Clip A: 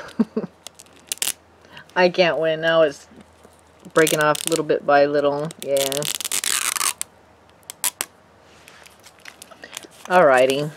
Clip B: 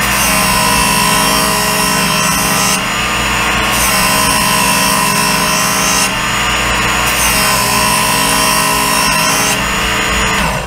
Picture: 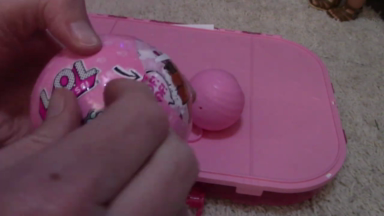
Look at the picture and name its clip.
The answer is A